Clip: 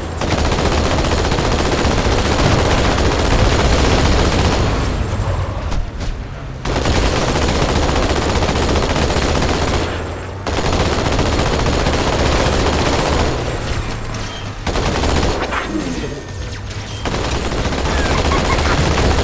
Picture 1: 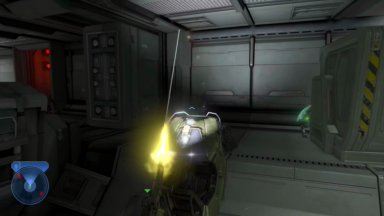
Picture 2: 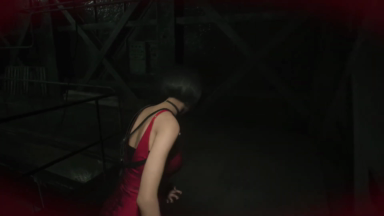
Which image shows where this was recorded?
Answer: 1